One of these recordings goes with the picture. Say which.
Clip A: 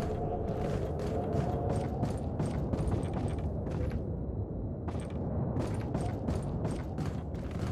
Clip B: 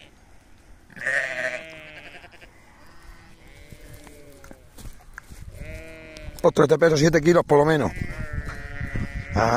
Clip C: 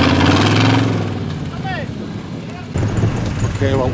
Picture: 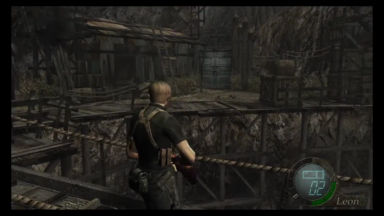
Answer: A